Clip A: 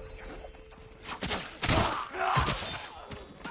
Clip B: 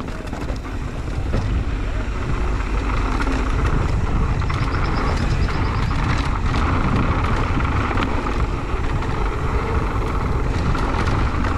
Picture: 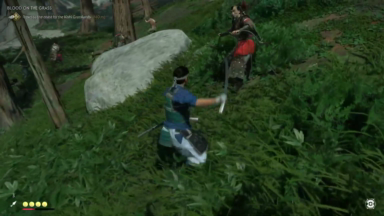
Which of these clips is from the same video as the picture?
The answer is A